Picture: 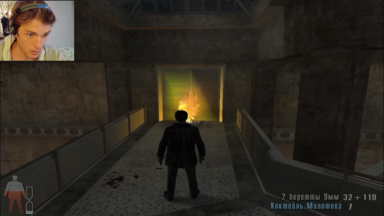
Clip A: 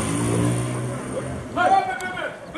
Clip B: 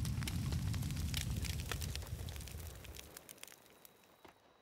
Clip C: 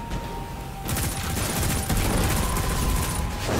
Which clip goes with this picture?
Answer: B